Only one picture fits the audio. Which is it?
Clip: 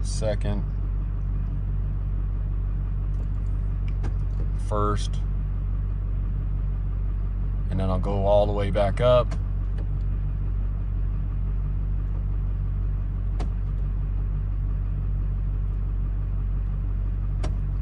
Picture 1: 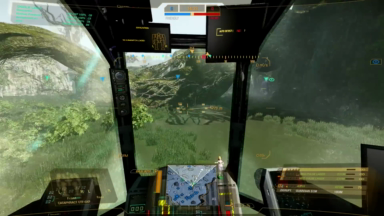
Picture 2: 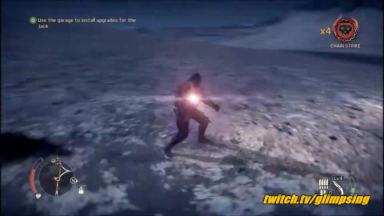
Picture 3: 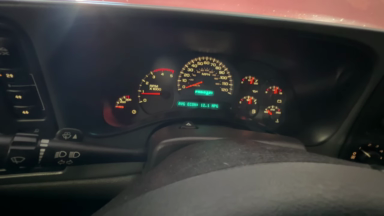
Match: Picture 3